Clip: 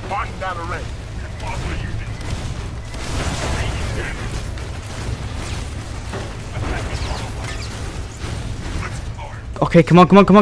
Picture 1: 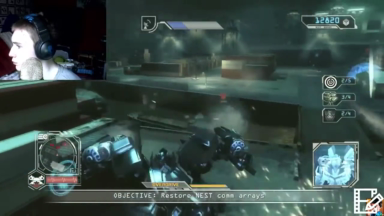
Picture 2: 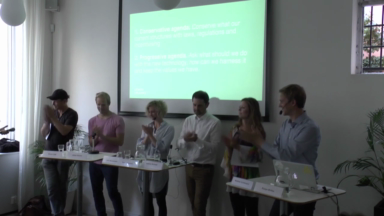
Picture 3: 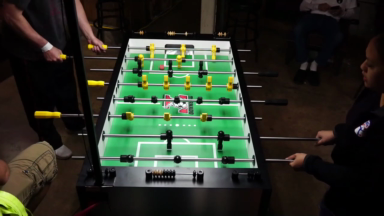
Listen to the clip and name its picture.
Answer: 1